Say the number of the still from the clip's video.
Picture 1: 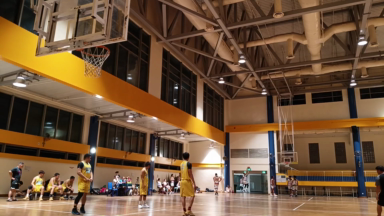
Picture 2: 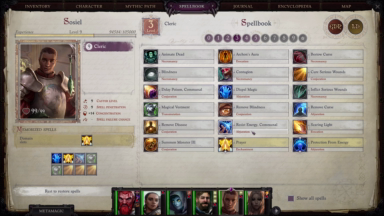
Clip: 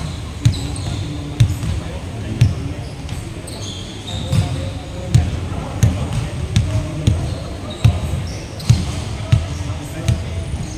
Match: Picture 1